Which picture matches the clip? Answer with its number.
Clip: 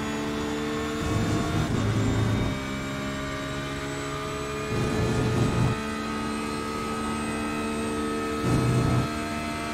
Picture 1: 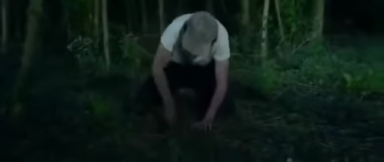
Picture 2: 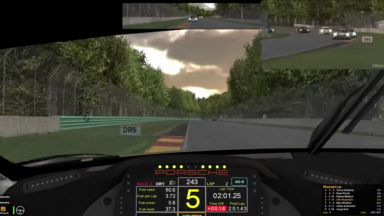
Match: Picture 2